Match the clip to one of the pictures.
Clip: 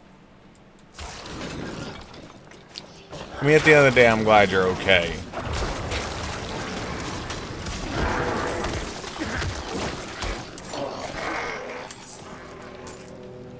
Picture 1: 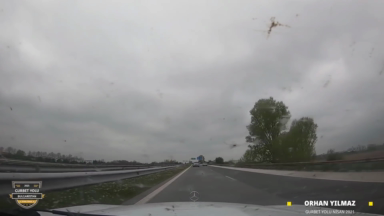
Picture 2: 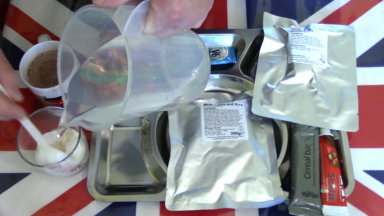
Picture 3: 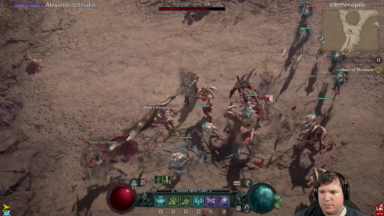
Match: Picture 3